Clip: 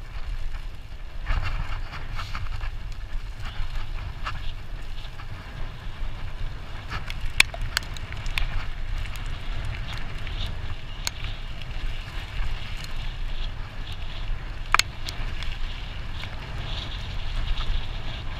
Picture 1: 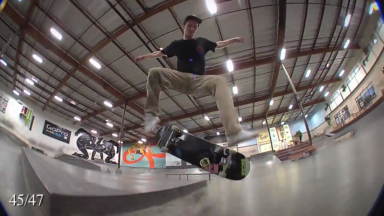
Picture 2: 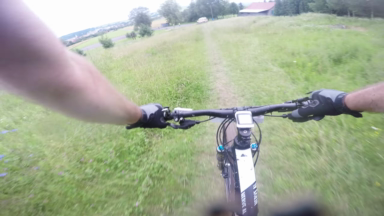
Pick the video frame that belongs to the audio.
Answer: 2